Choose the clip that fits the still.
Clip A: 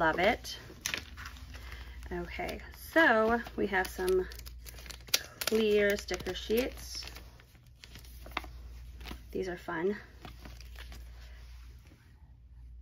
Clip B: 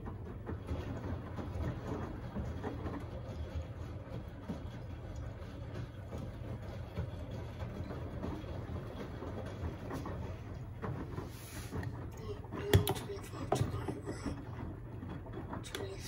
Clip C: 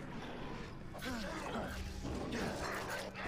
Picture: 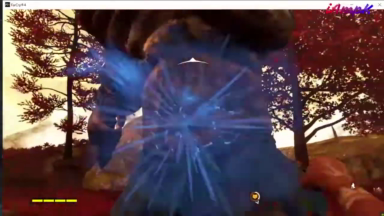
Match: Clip C